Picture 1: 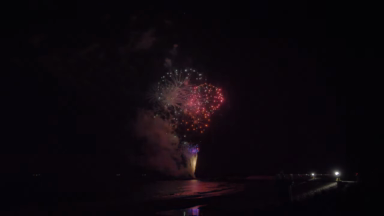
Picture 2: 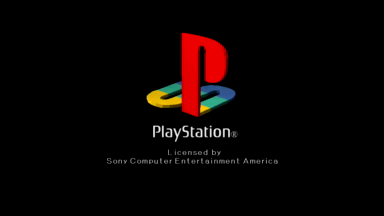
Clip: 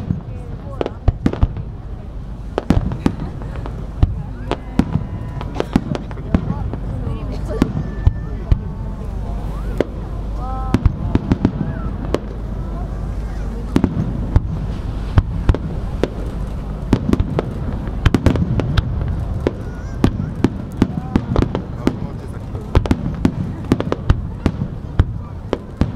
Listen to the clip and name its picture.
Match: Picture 1